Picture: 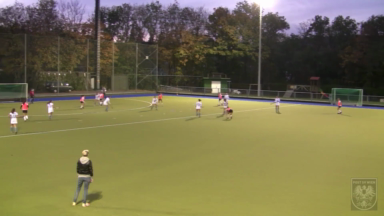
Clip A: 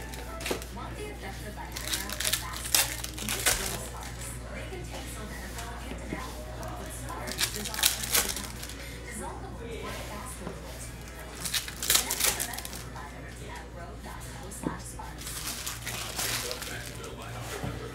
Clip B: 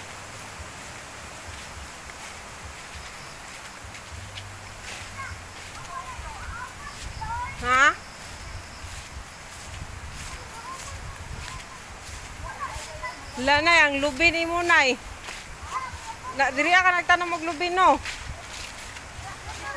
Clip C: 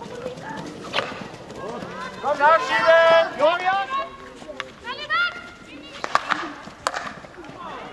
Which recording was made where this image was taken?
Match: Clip C